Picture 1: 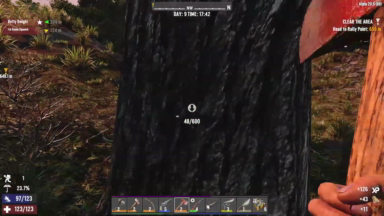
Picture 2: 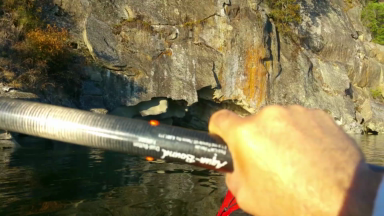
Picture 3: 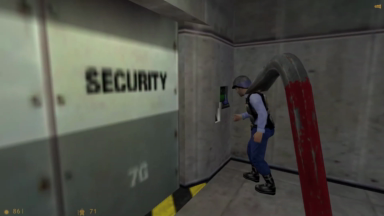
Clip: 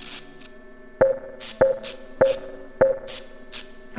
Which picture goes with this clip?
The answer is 3